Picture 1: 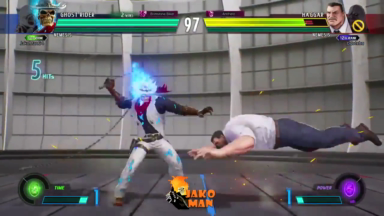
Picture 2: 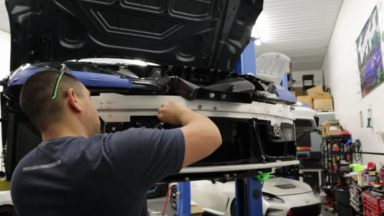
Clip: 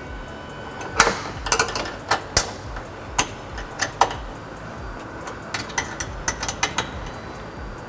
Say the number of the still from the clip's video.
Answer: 2